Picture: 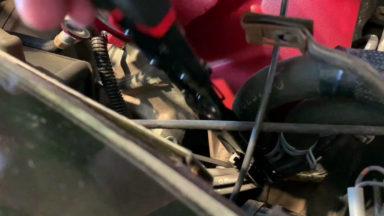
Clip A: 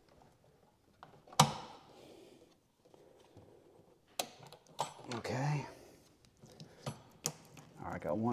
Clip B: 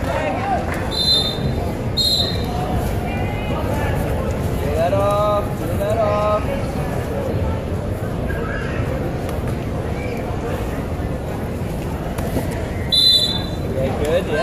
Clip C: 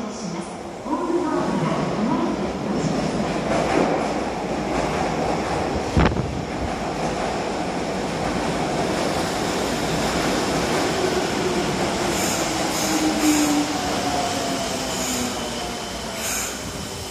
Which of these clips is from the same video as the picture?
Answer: A